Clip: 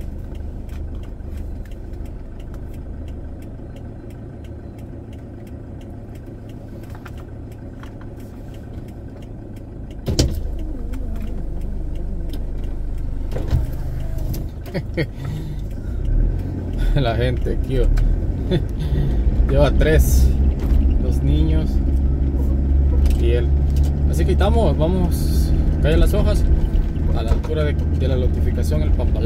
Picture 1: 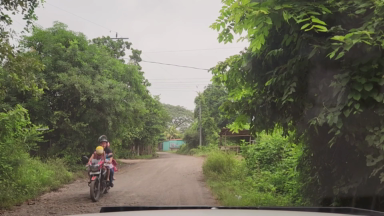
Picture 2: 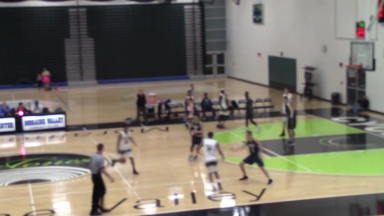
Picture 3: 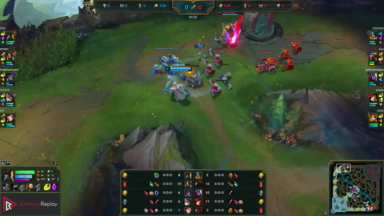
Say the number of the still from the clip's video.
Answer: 1